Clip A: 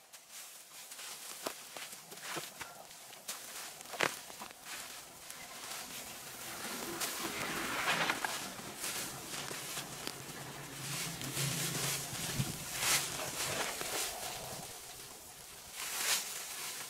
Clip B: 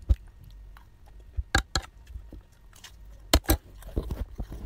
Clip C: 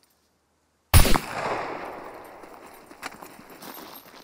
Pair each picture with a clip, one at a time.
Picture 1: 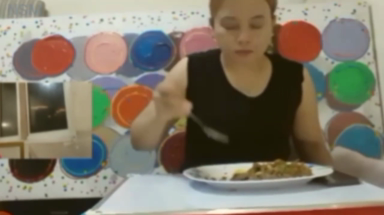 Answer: B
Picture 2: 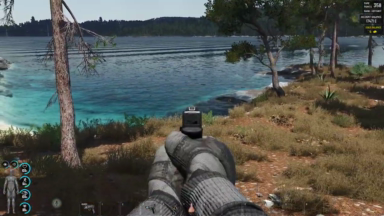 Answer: C